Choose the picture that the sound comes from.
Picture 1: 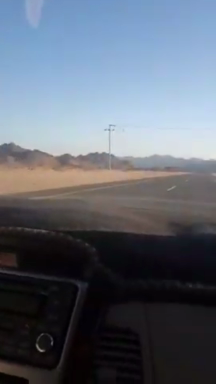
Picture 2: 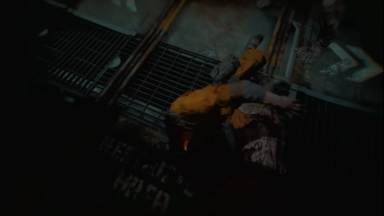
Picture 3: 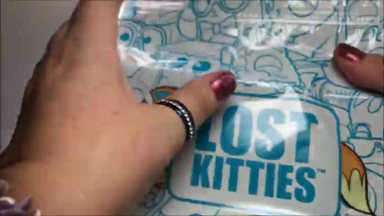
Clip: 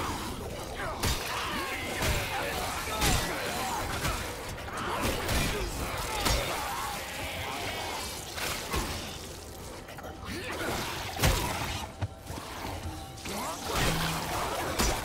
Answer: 2